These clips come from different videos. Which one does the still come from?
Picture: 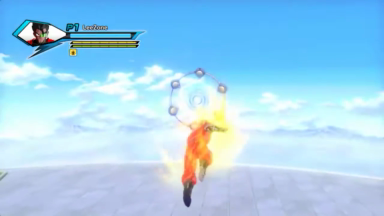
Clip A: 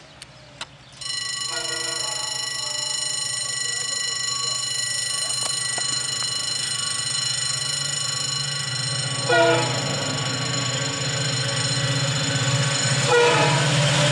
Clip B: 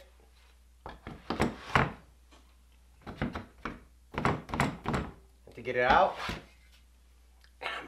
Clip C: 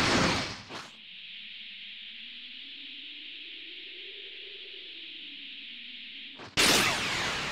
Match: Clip C